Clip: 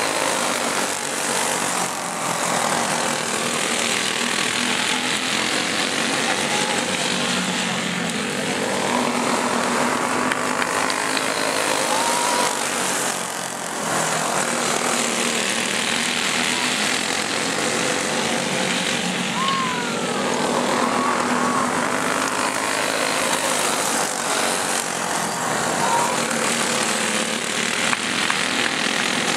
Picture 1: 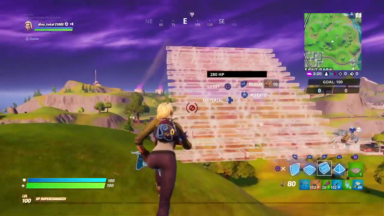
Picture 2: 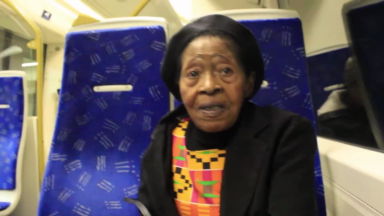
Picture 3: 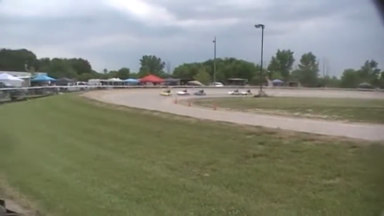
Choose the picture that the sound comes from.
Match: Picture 3